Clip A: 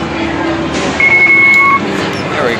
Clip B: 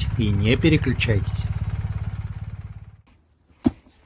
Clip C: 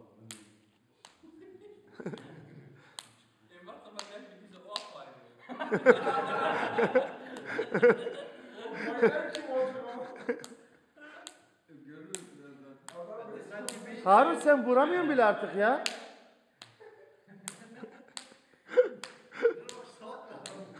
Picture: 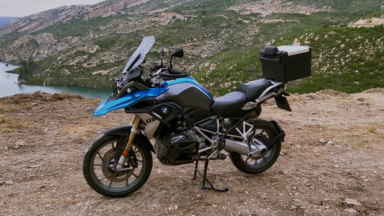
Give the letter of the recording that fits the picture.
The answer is B